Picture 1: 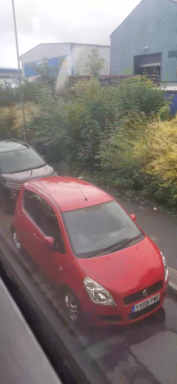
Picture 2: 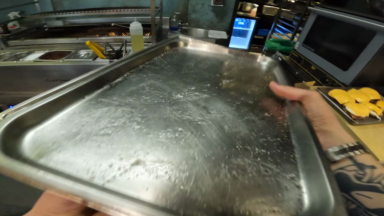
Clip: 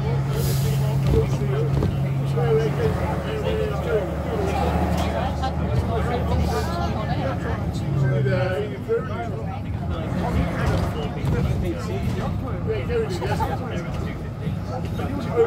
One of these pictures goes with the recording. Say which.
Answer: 1